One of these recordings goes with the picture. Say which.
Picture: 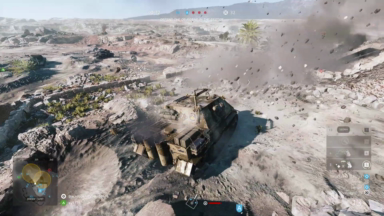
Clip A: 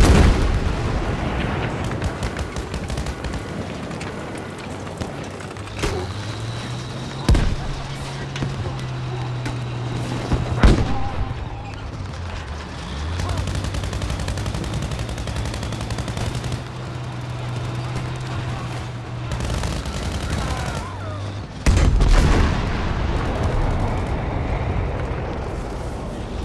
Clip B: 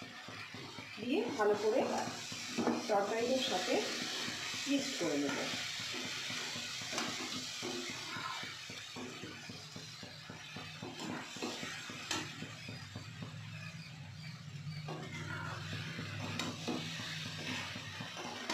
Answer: A